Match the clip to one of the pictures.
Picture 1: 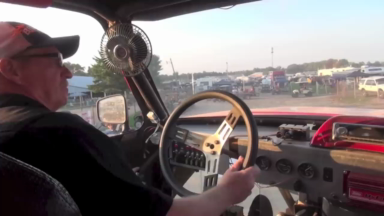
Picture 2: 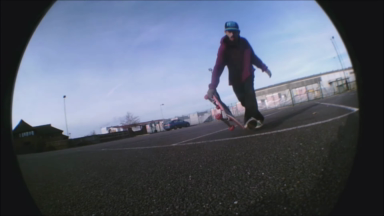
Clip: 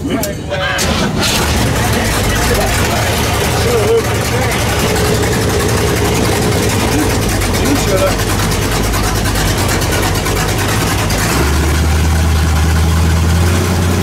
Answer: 1